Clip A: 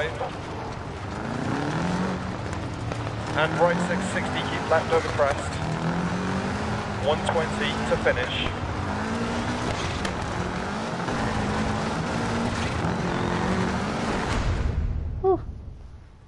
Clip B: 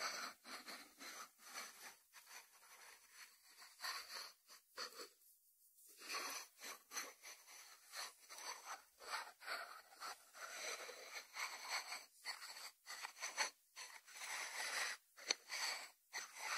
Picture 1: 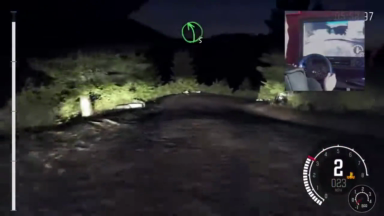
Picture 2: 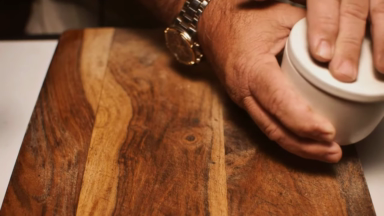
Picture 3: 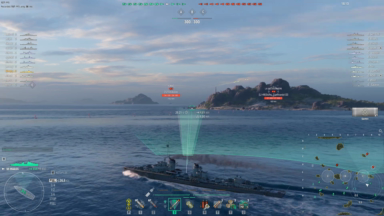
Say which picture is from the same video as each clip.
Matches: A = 1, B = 2